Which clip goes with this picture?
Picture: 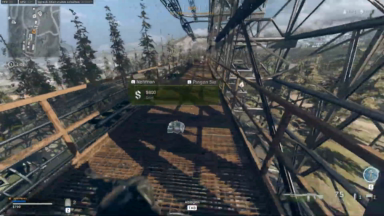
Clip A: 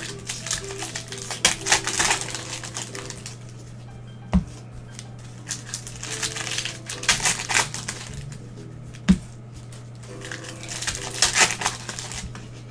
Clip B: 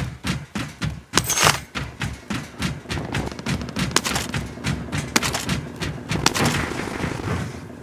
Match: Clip B